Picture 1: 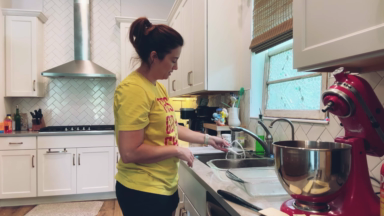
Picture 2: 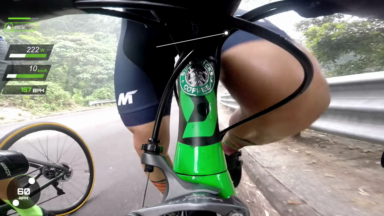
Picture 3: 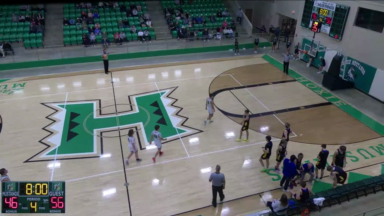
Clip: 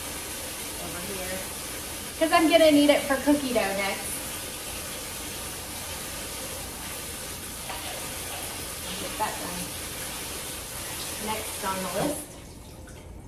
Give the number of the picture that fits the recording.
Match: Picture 1